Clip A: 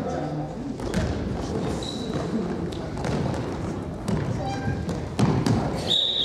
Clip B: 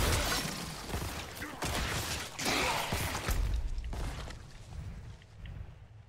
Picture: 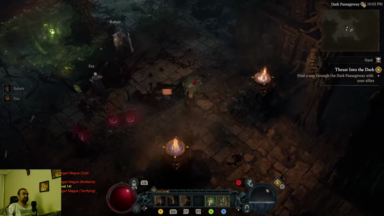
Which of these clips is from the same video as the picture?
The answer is B